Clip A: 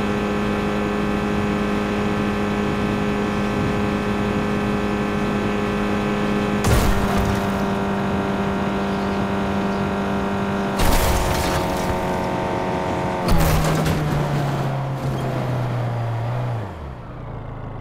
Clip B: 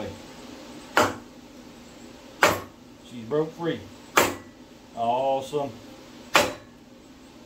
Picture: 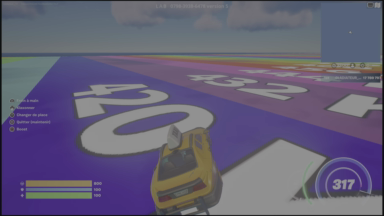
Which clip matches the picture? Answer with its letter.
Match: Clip A